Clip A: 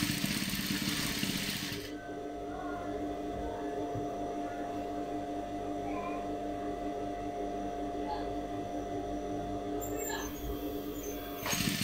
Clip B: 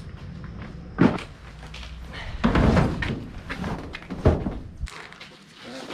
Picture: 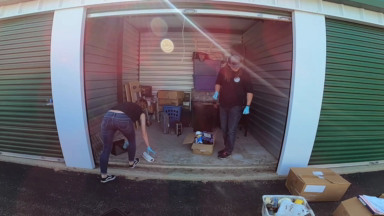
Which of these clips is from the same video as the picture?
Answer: B